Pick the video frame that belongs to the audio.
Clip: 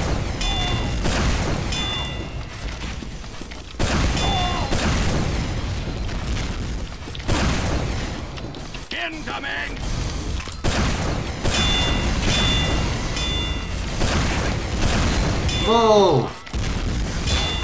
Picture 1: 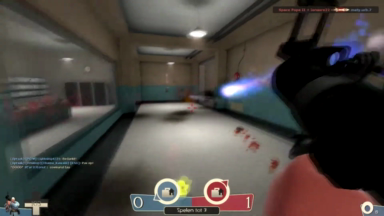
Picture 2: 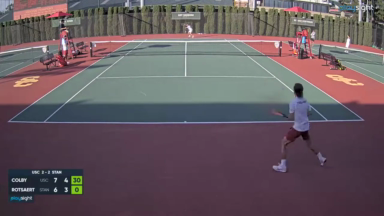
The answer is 1